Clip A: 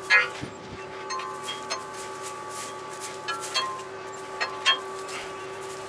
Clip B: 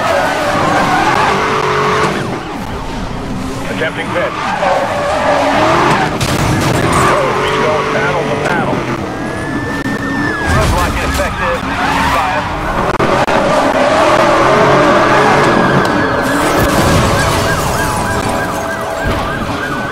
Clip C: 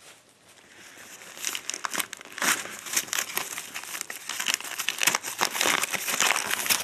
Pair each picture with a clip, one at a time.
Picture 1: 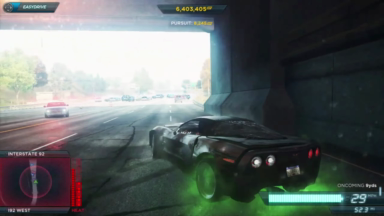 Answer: B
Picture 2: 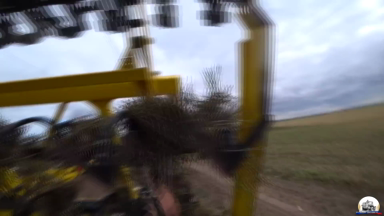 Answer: A